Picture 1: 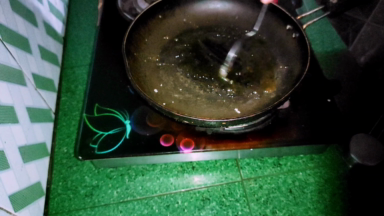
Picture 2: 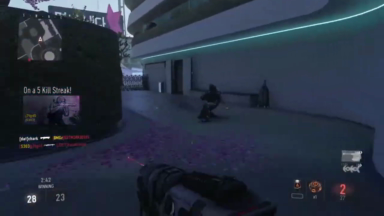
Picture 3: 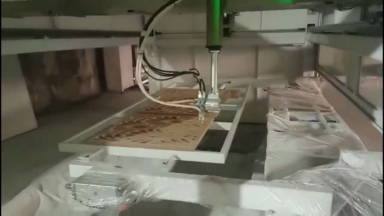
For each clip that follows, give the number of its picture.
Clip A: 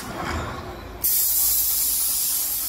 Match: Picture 3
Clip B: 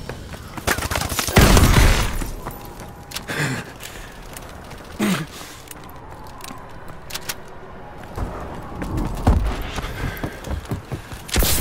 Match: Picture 2